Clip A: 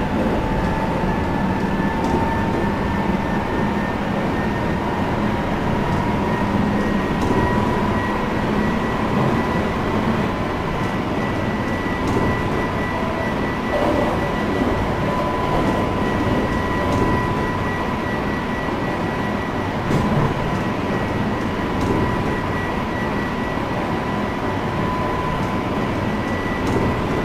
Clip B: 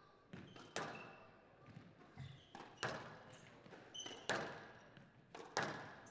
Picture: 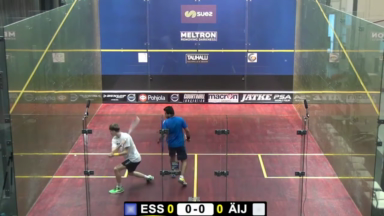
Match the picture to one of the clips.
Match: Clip B